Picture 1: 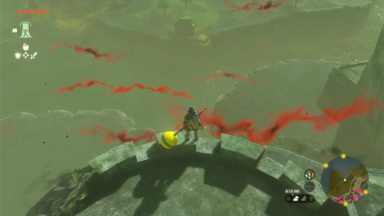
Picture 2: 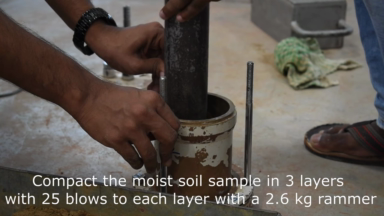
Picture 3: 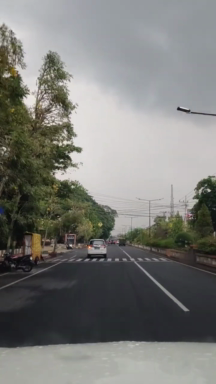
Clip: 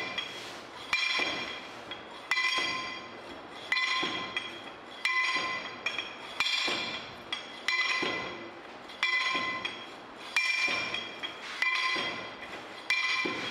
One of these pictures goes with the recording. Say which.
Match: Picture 2